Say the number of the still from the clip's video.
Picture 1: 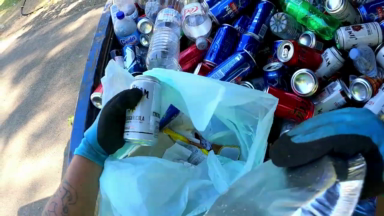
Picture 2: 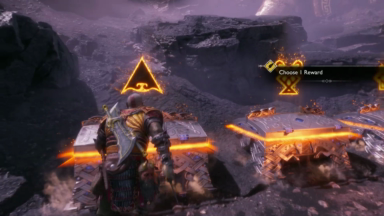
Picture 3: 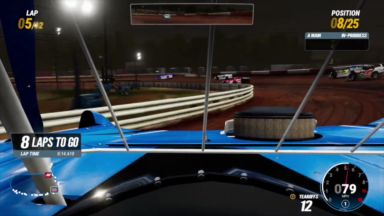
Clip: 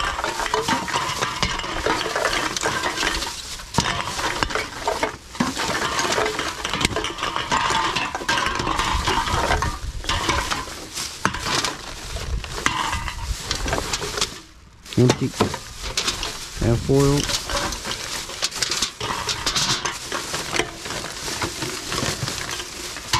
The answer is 1